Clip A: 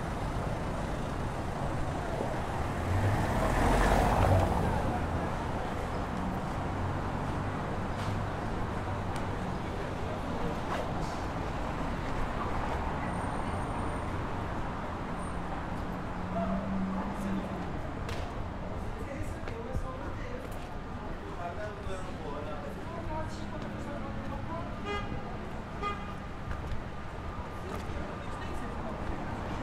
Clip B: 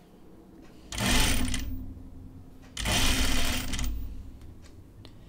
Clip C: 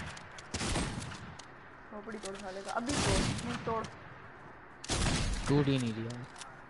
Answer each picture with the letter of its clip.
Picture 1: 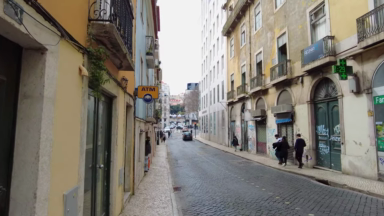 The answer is A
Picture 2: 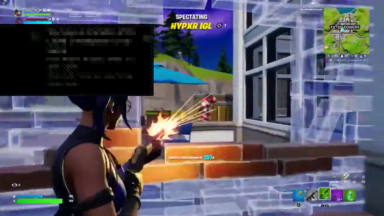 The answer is C